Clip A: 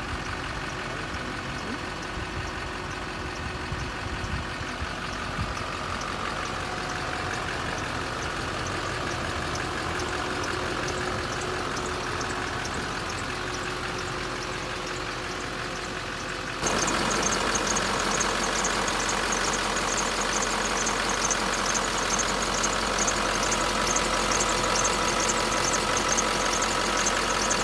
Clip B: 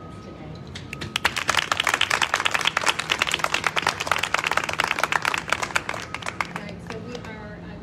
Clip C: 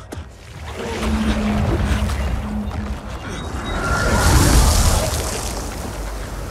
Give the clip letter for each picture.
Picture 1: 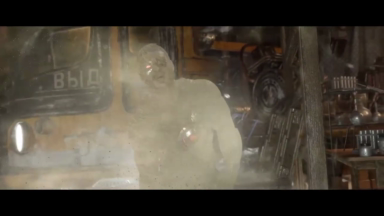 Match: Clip C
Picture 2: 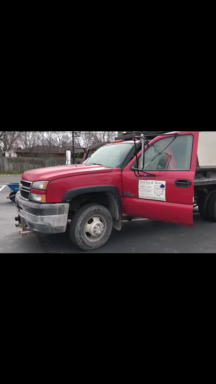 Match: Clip A